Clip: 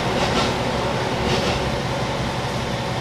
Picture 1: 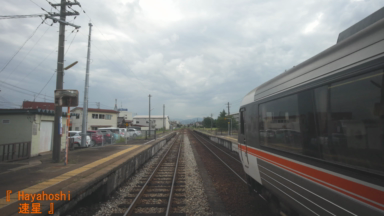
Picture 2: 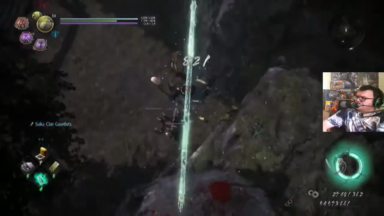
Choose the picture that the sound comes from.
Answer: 1